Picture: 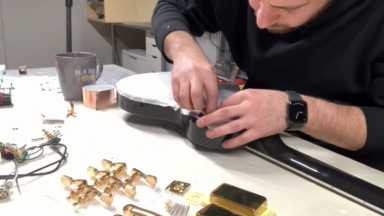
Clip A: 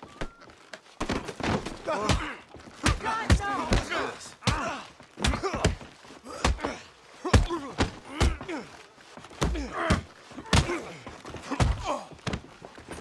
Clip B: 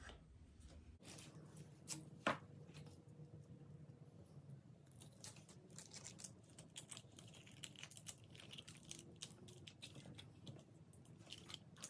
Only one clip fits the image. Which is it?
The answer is B